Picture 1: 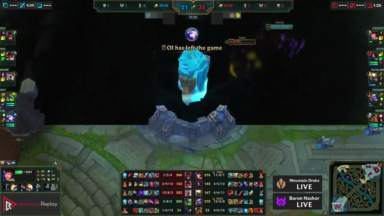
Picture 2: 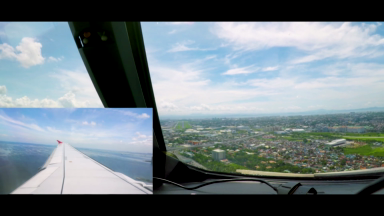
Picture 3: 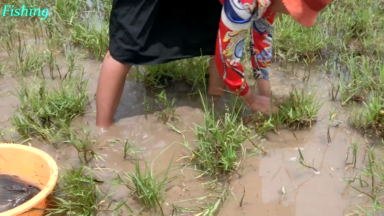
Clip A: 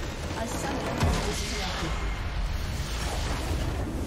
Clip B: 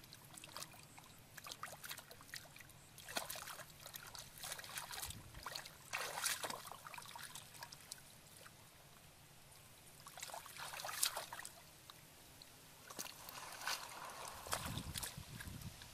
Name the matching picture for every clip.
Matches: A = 1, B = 3